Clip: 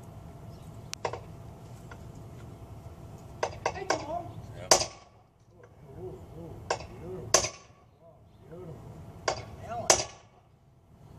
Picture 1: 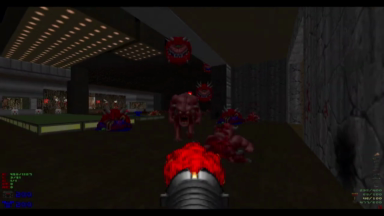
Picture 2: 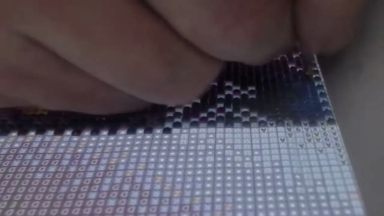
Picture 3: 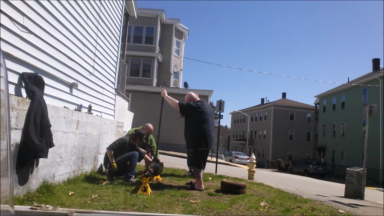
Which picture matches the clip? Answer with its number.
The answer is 3